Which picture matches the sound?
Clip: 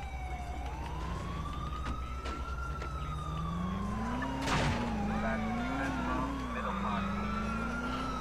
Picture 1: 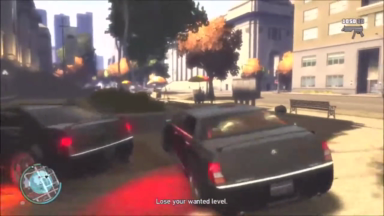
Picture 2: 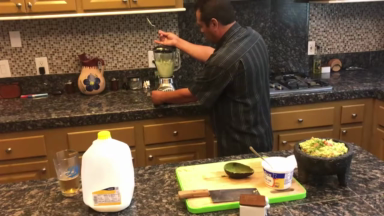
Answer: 1